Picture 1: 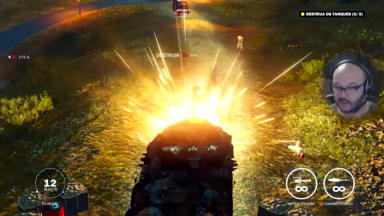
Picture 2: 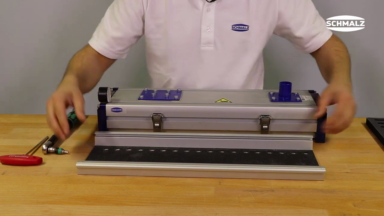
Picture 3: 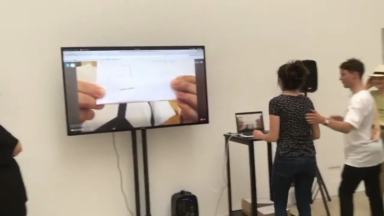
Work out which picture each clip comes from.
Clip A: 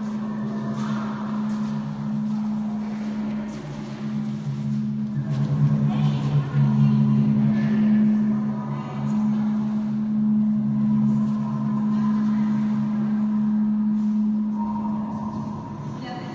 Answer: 3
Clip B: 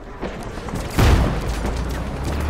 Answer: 1